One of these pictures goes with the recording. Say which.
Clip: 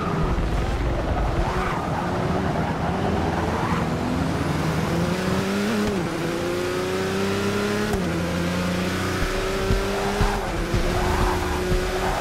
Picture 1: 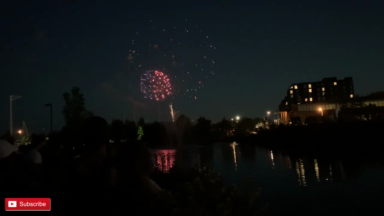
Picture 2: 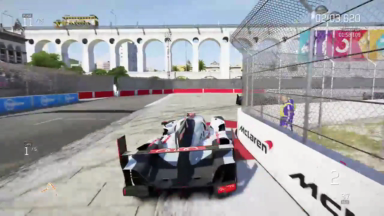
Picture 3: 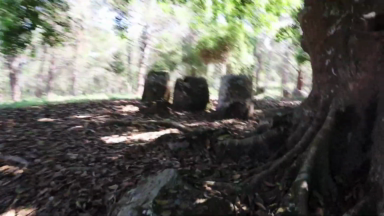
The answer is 2